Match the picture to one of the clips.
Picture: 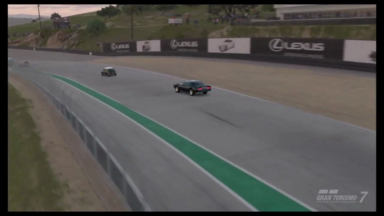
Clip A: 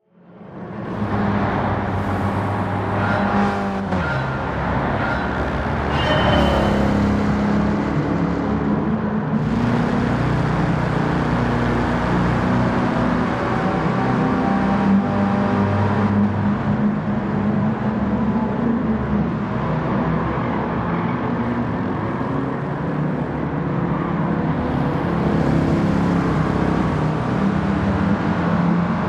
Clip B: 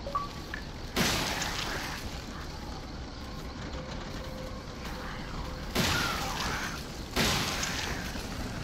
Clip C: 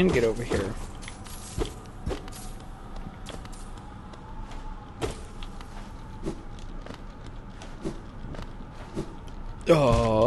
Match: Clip A